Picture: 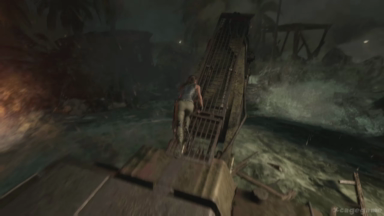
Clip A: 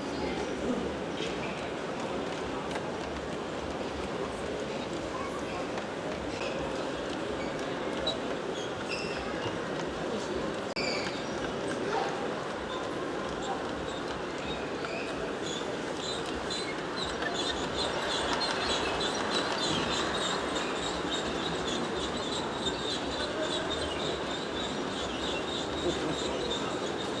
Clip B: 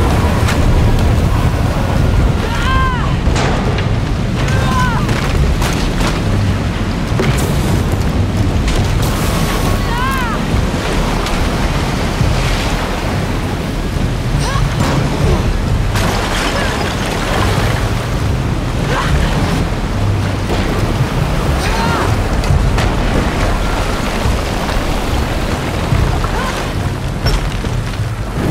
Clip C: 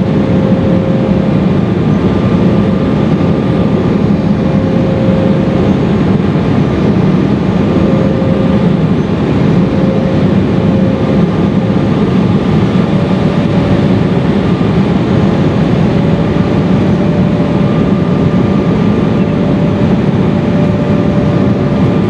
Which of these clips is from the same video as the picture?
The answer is B